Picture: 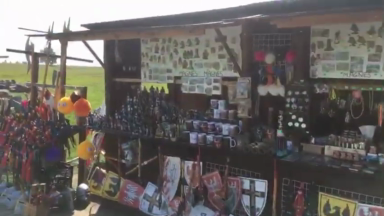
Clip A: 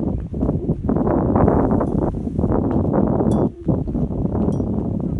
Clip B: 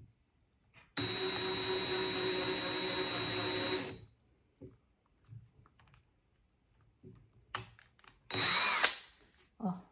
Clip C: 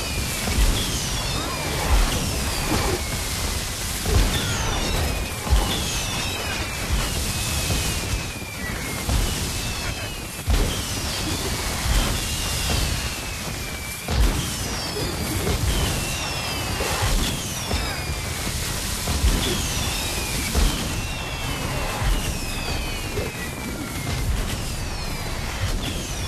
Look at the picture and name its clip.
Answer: A